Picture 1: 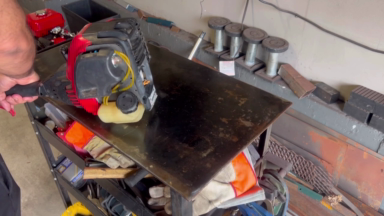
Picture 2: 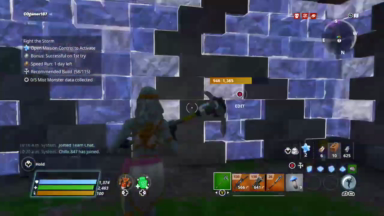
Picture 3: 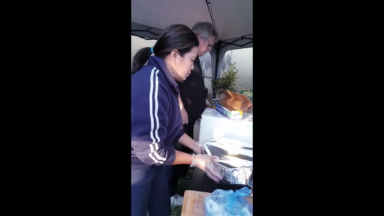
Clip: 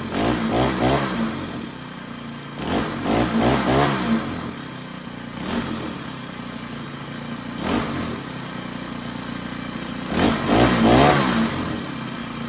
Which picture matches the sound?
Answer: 1